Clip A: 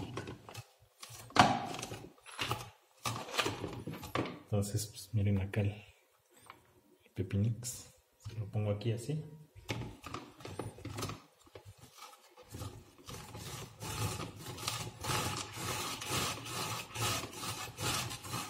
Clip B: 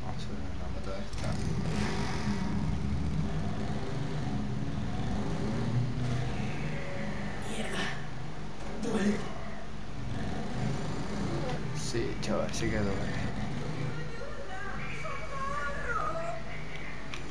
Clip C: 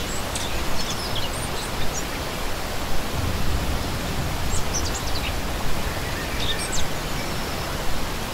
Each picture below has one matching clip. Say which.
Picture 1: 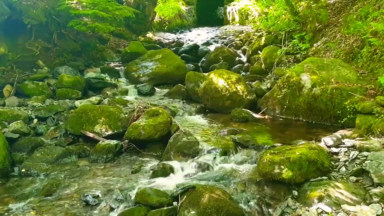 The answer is C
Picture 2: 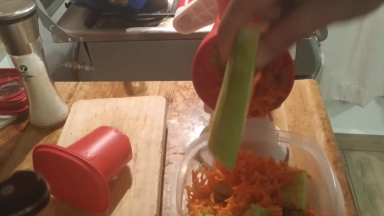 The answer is A